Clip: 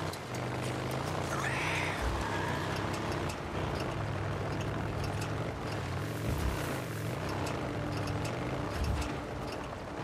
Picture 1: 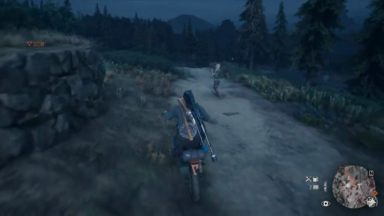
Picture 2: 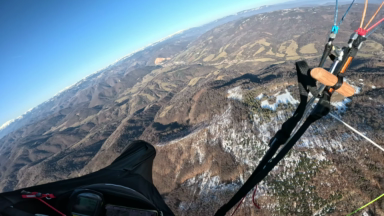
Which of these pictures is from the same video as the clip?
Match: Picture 1